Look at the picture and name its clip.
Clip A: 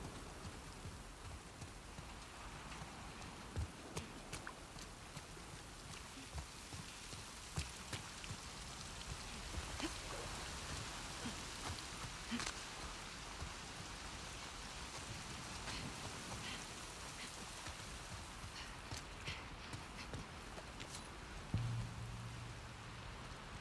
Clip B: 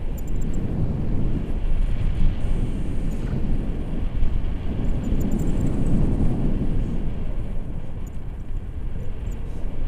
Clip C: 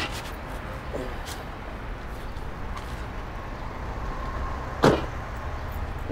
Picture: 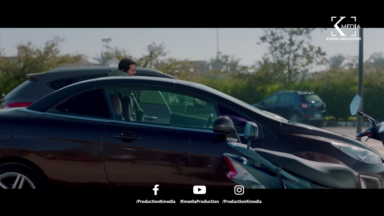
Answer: C